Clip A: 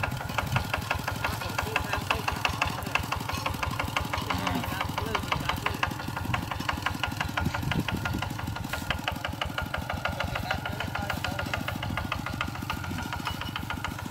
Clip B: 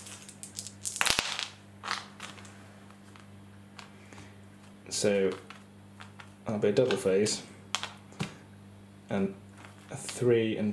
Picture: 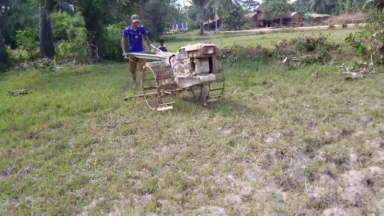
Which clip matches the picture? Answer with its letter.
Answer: A